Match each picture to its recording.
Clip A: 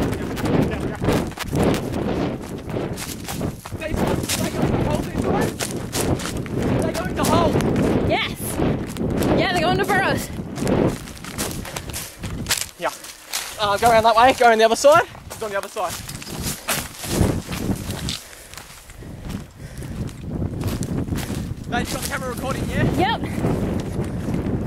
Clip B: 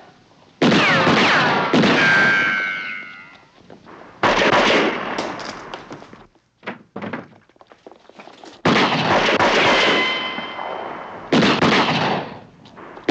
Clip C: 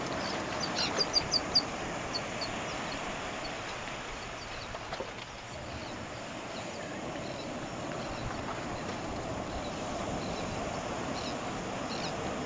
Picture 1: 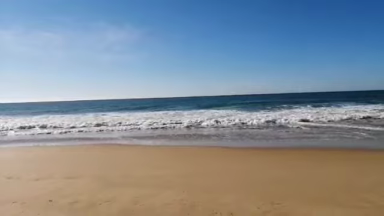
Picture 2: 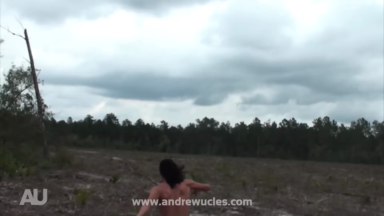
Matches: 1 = C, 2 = A